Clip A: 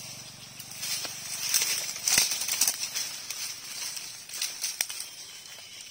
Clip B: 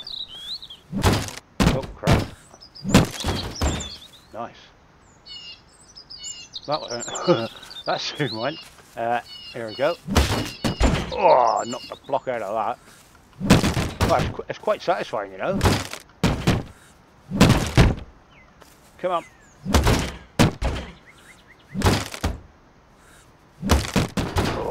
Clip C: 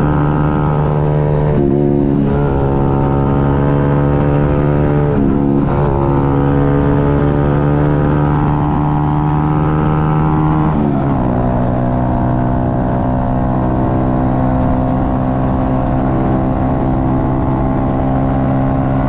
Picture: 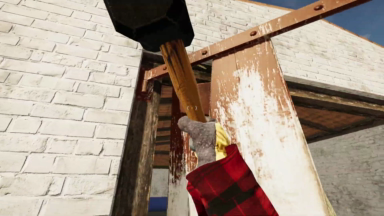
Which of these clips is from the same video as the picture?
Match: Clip B